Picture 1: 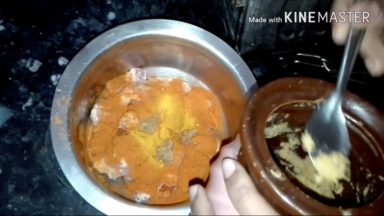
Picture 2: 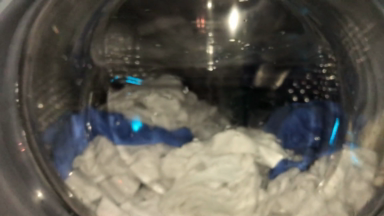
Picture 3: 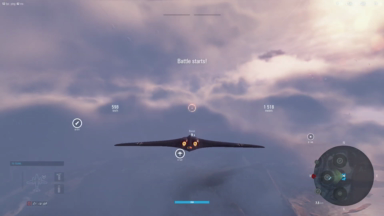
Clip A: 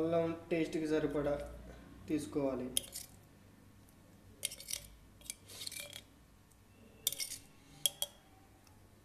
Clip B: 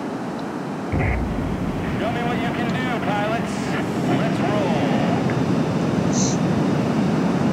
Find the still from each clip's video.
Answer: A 1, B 3